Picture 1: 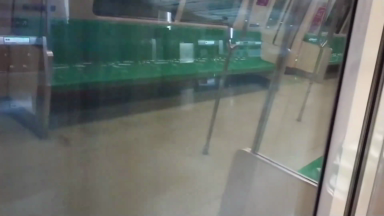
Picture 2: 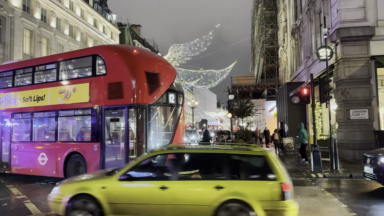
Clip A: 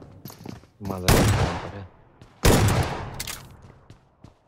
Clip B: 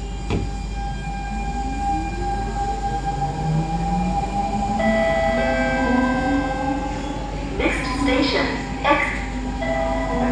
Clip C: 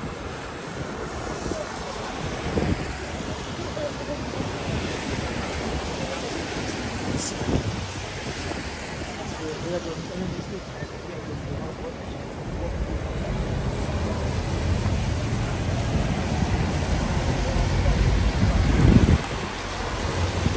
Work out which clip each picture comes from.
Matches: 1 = B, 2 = C